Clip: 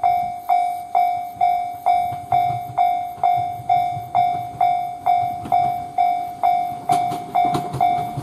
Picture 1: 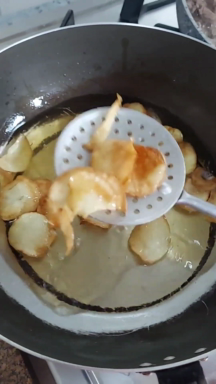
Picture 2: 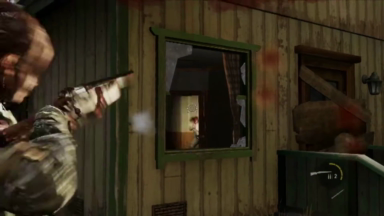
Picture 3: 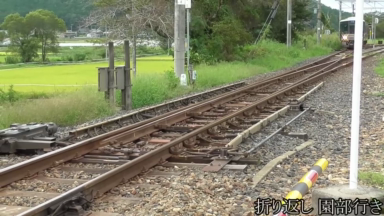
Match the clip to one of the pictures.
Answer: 3